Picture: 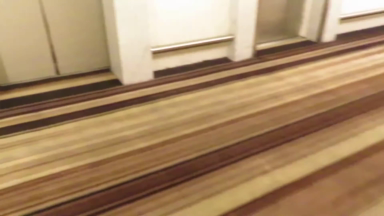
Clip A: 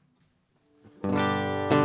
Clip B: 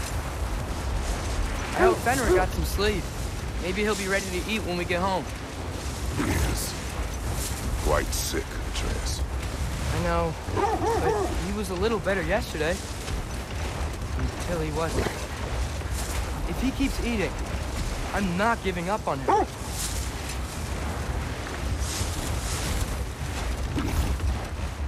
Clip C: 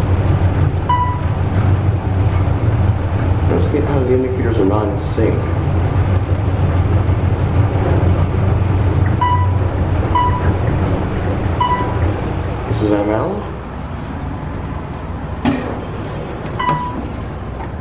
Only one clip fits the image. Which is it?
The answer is C